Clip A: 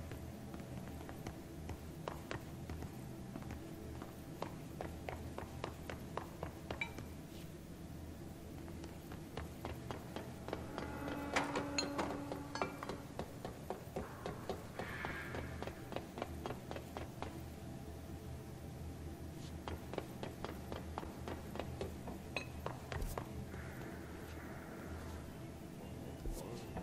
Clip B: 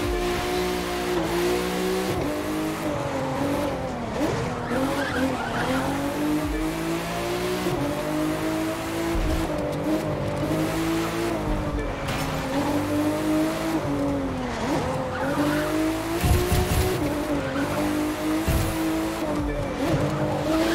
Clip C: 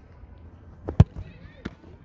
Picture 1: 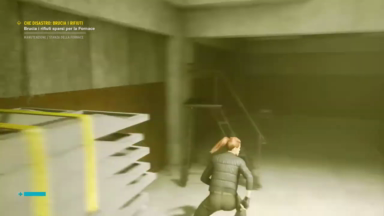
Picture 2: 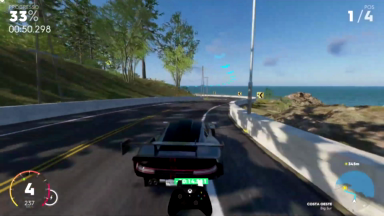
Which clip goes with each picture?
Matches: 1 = A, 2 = B